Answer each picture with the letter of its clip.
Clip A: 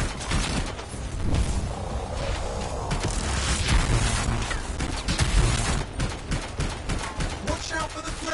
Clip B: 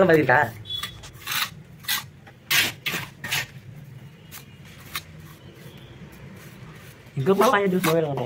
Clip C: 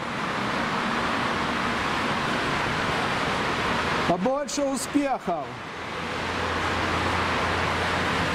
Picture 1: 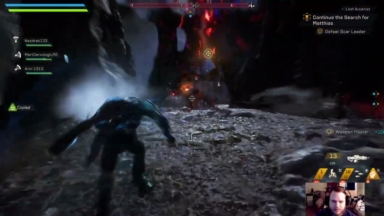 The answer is A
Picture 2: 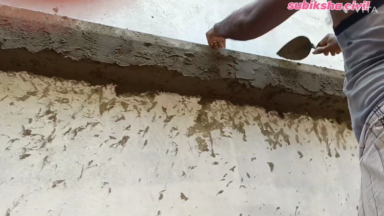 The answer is B